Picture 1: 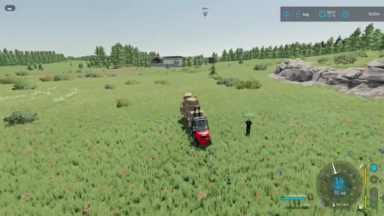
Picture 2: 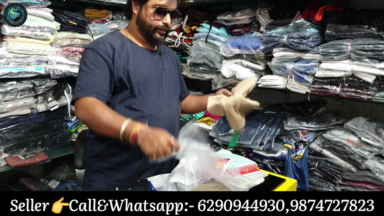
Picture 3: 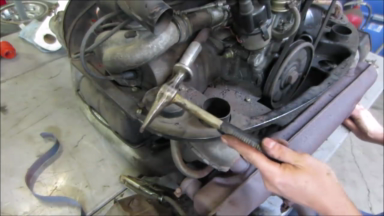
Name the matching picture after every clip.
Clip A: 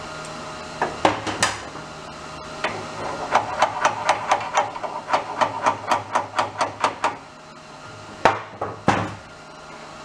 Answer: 3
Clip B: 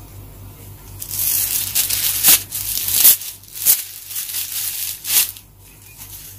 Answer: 2